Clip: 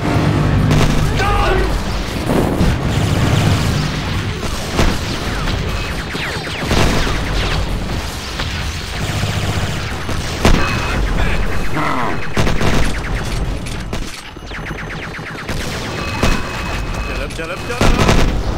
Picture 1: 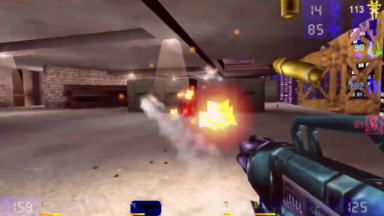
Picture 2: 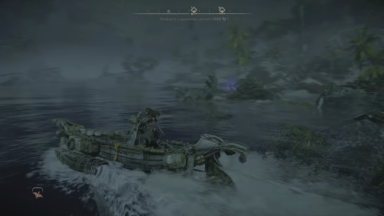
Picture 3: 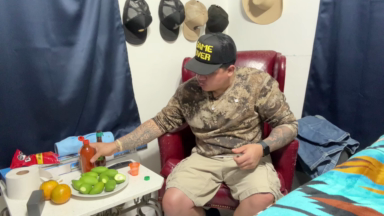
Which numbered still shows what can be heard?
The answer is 1